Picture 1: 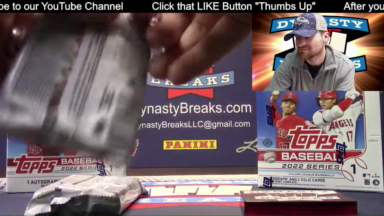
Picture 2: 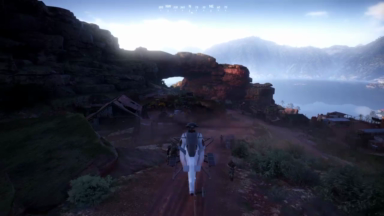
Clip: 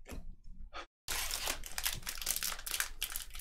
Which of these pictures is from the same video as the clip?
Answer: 1